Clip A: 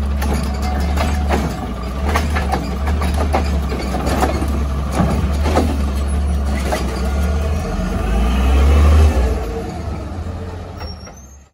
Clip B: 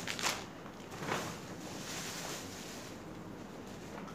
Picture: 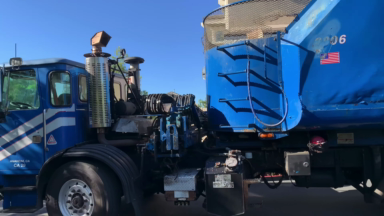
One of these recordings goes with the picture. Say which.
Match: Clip A